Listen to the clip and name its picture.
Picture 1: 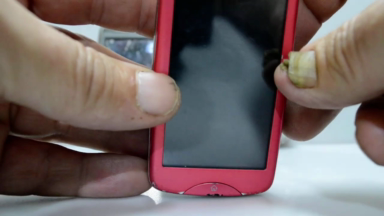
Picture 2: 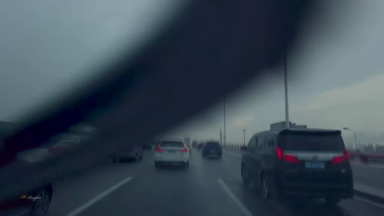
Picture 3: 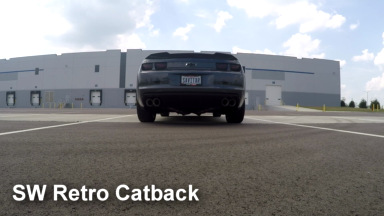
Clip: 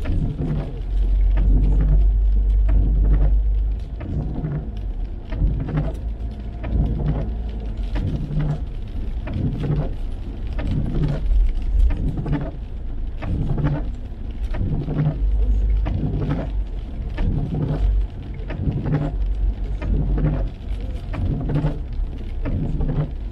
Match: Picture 2